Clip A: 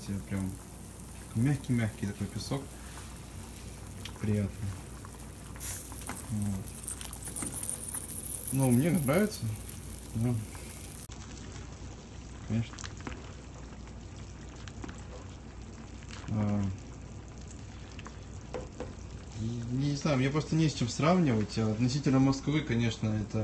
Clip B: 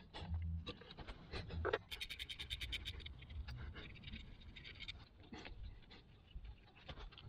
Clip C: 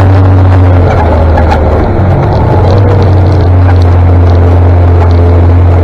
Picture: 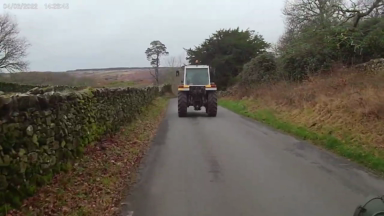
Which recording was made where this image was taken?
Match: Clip C